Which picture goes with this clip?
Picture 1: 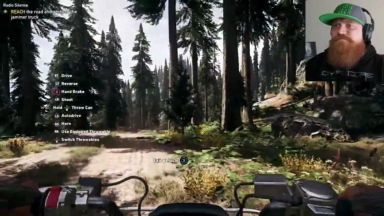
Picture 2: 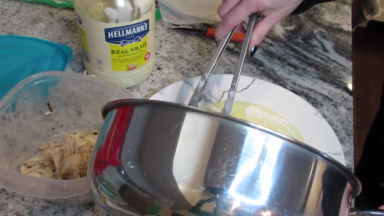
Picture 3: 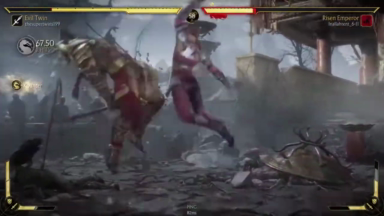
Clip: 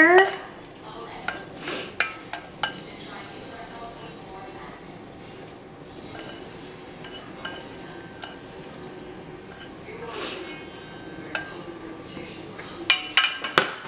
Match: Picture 2